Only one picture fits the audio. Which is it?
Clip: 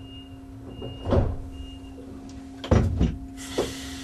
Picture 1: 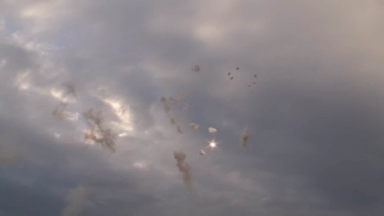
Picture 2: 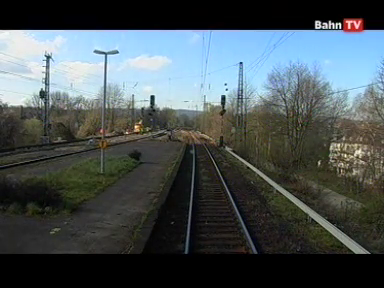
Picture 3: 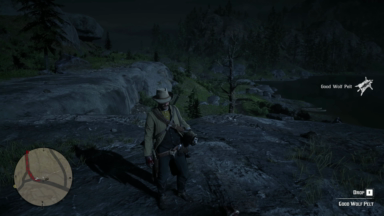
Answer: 2